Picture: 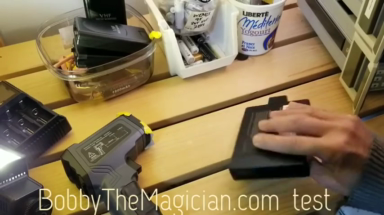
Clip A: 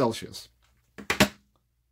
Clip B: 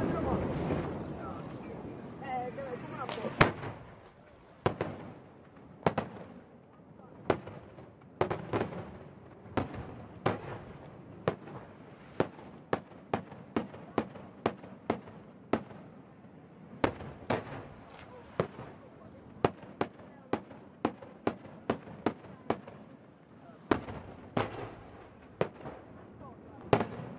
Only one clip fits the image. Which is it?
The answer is A